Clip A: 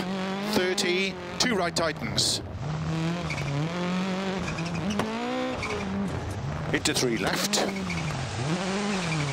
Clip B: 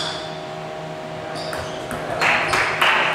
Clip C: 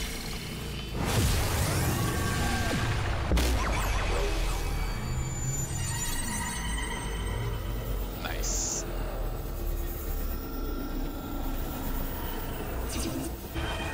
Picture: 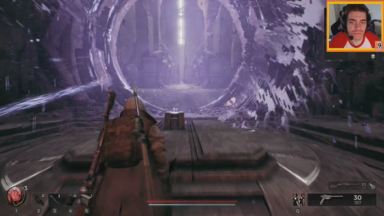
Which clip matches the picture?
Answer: C